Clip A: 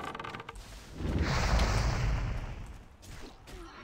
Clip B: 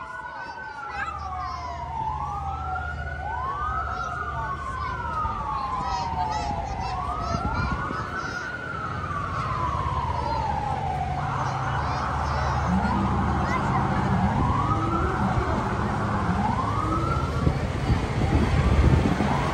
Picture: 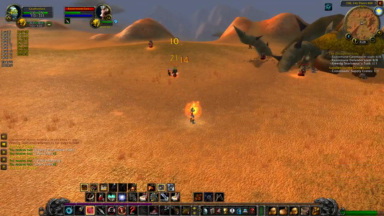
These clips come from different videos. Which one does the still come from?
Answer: A